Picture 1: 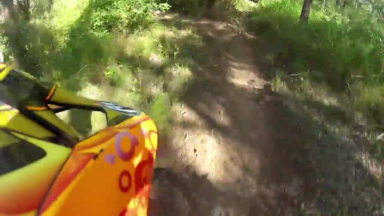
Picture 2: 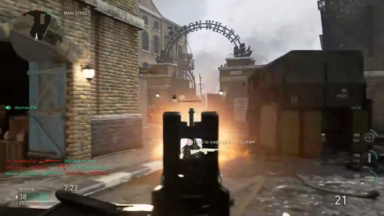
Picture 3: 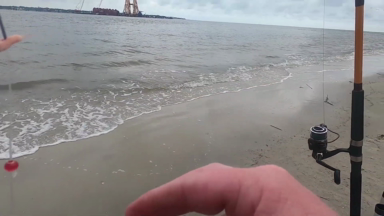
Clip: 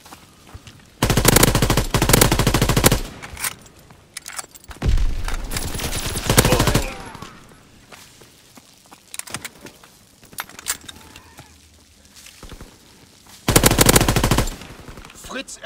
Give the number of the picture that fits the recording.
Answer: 2